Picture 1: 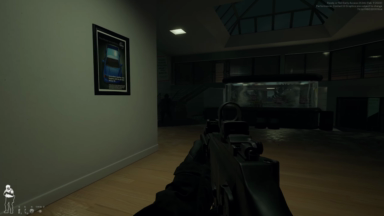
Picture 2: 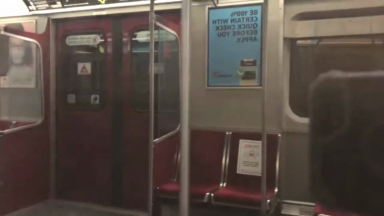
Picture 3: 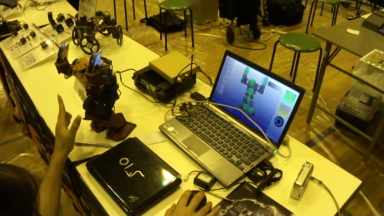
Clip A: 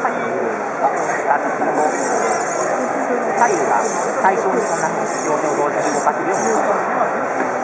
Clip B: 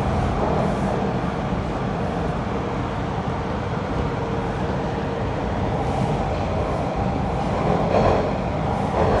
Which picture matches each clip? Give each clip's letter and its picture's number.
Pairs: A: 3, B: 2